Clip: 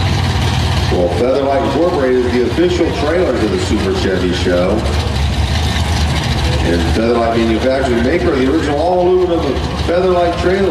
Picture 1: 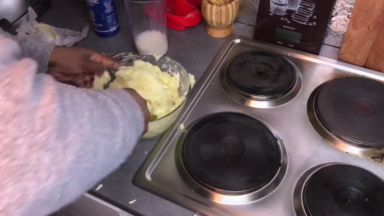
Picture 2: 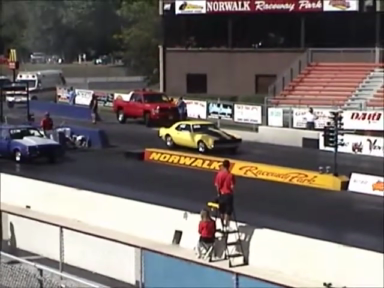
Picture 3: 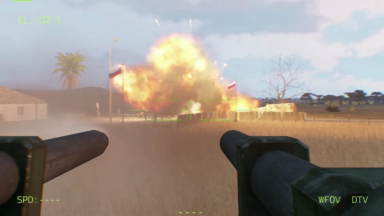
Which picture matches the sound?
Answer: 2